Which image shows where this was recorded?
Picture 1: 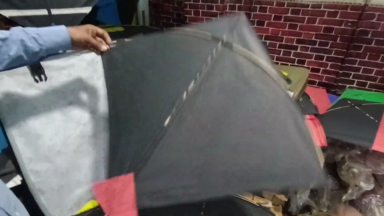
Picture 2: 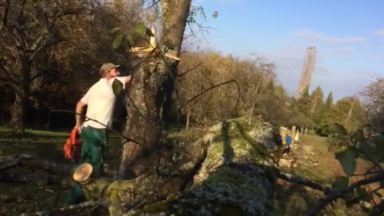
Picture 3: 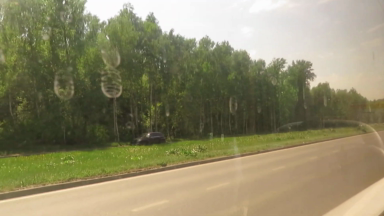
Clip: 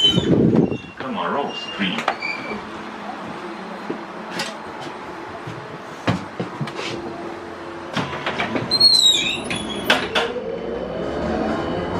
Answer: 3